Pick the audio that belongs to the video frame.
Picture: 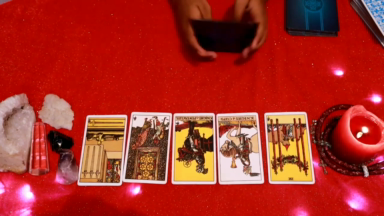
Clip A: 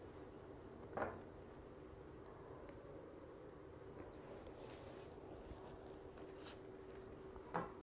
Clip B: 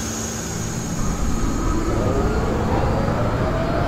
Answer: A